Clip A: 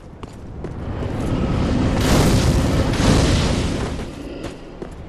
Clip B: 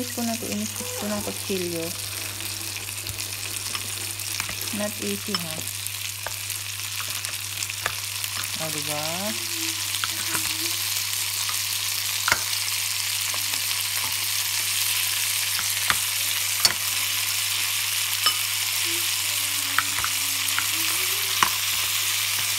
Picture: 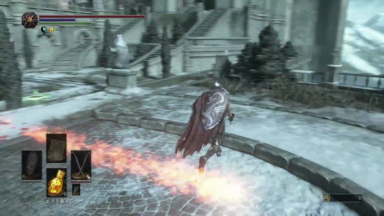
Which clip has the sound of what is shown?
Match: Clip A